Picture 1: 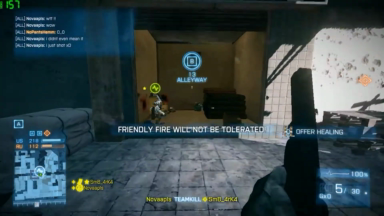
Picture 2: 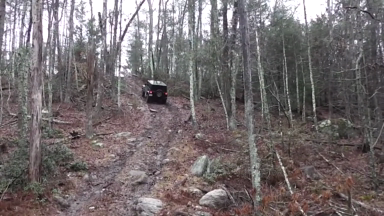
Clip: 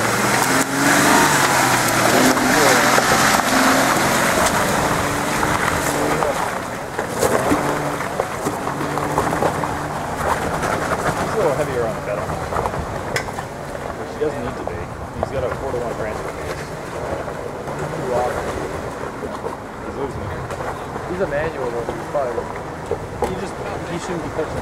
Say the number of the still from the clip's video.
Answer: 2